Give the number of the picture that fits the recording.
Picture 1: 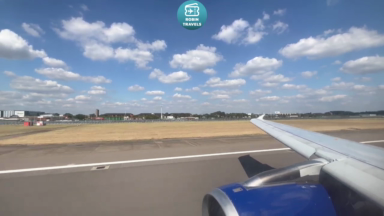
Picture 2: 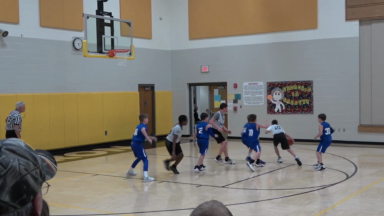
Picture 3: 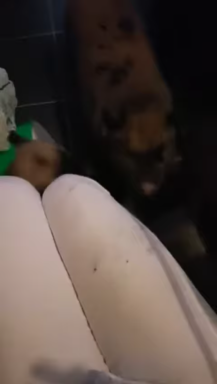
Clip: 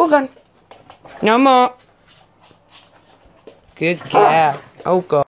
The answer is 3